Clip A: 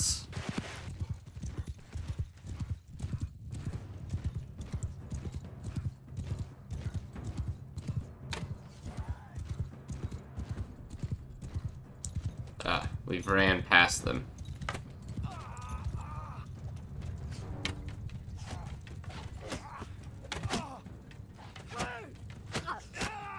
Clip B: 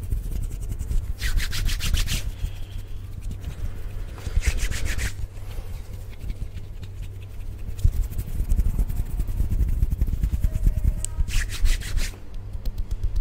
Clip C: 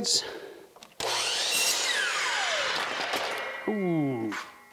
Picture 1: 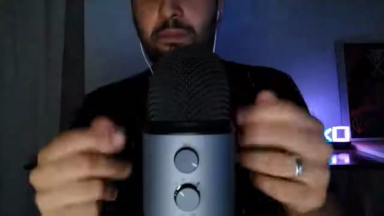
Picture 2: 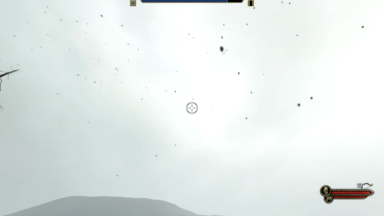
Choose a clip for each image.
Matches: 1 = B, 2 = A